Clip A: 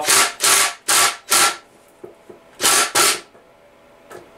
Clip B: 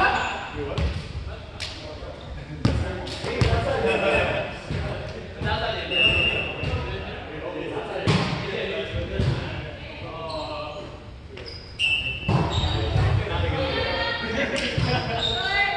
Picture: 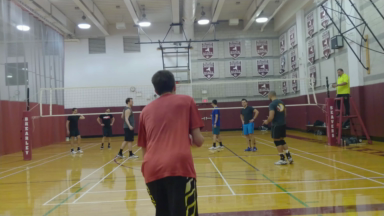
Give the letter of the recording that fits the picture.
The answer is B